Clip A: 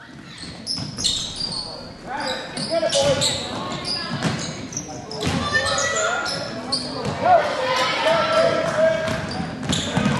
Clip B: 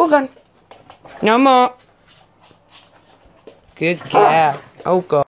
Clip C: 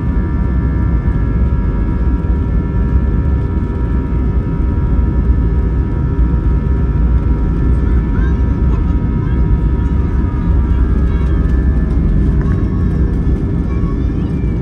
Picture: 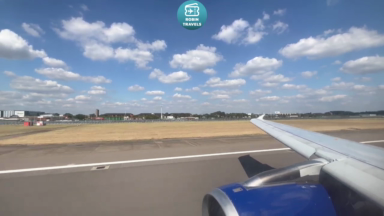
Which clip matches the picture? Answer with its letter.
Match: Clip C